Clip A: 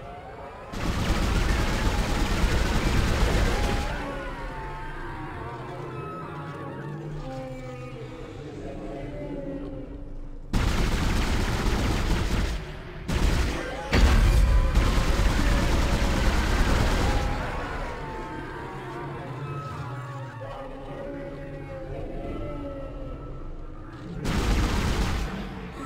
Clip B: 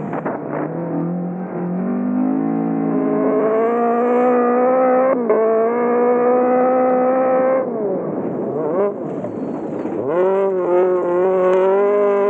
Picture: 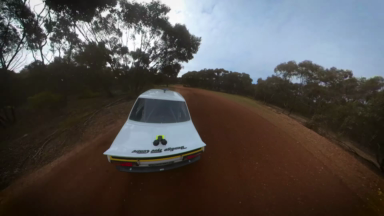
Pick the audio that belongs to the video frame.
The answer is B